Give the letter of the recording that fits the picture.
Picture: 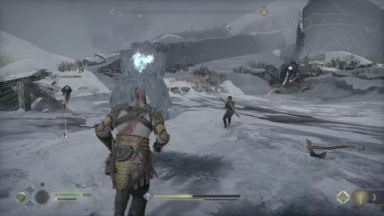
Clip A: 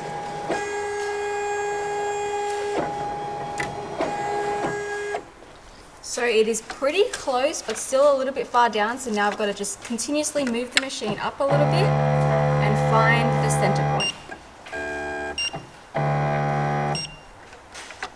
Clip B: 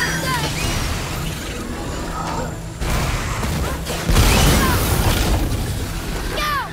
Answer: B